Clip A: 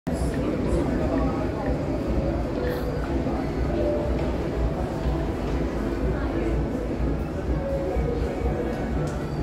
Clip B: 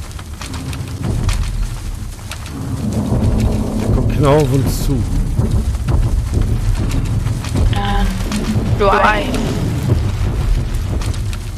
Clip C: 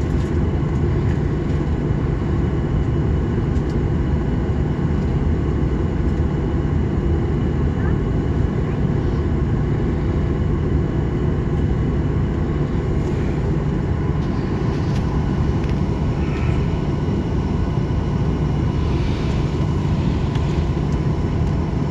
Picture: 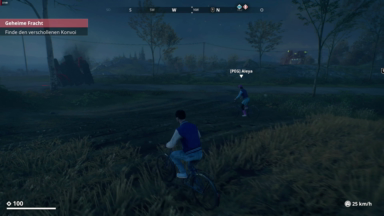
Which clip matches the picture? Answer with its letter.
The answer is B